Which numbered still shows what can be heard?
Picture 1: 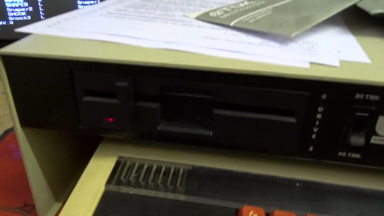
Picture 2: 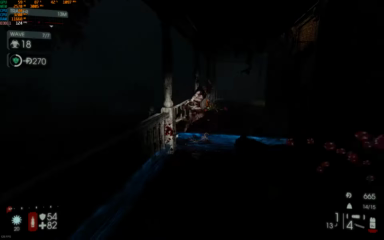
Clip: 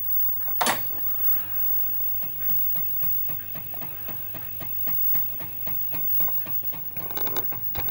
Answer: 1